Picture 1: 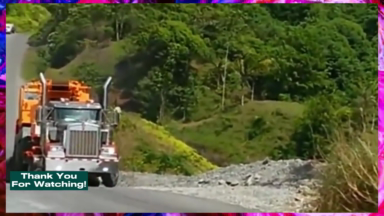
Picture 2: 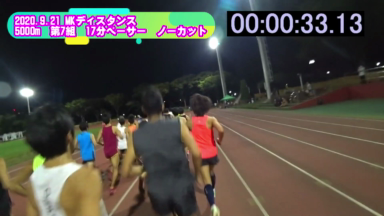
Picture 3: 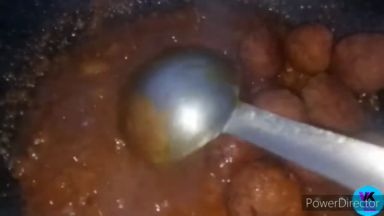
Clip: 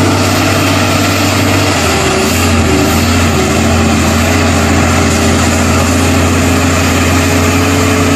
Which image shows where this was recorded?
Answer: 1